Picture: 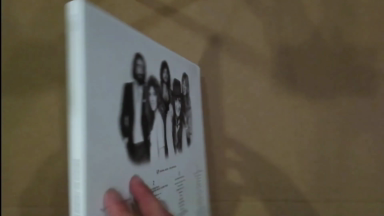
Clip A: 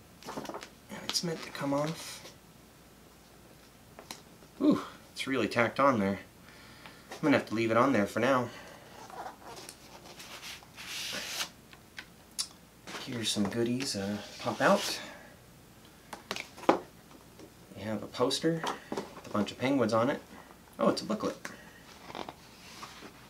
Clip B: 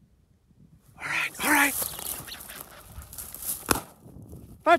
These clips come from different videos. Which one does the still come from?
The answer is A